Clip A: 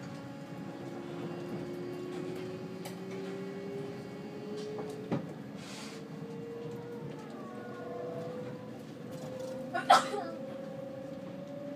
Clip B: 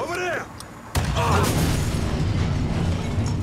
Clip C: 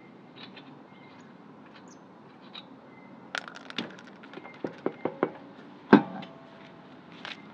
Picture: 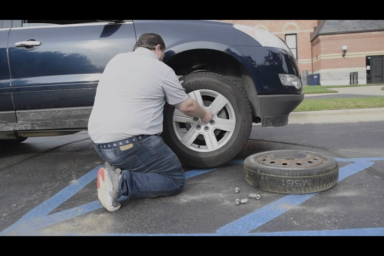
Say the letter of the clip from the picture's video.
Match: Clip C